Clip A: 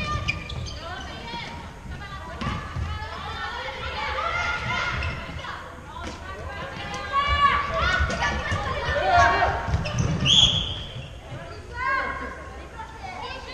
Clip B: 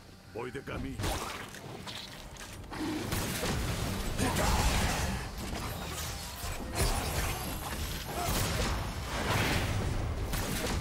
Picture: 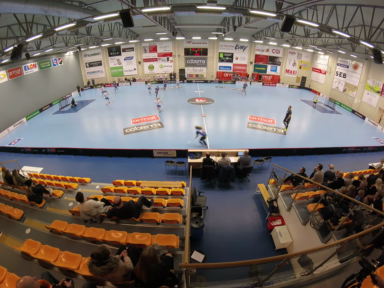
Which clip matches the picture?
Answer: A